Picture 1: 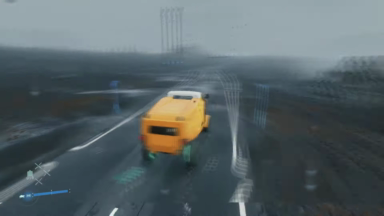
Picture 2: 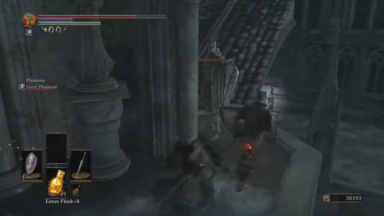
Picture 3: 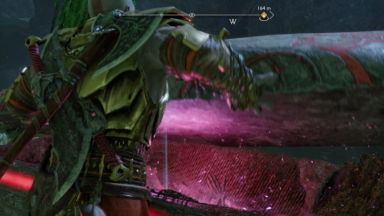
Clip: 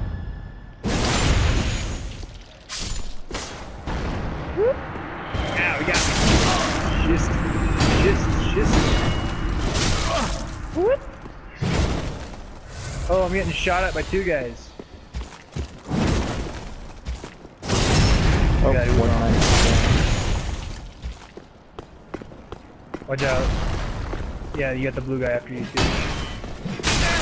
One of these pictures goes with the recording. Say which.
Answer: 2